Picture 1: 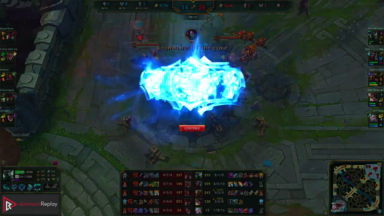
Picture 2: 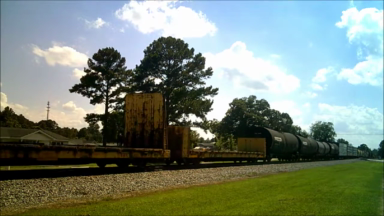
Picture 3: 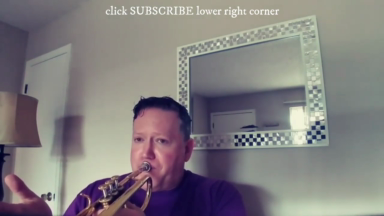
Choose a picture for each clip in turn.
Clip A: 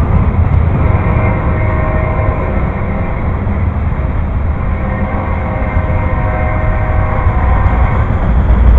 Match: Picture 2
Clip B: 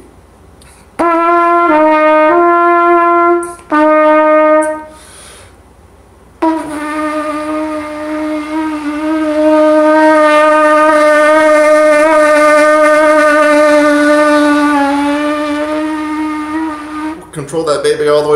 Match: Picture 3